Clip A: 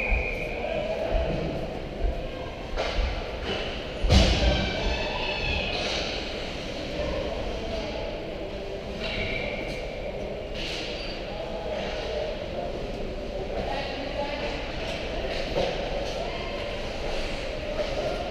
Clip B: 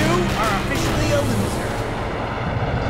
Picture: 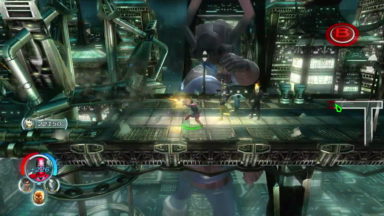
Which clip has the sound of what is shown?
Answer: B